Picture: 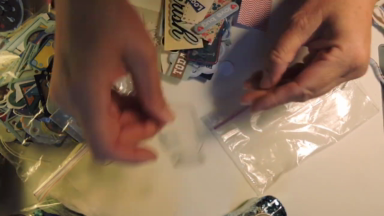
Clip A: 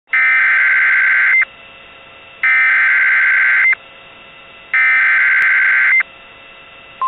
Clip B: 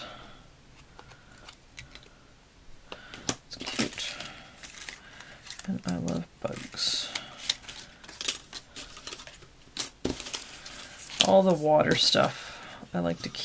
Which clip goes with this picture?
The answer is B